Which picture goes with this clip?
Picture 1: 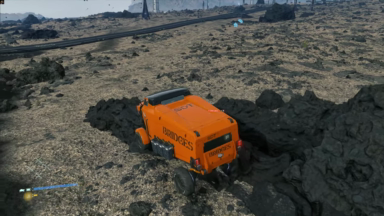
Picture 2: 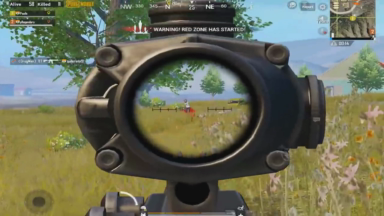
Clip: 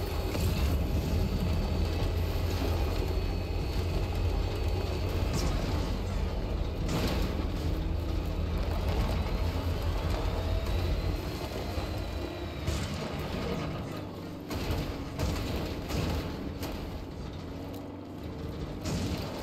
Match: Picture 1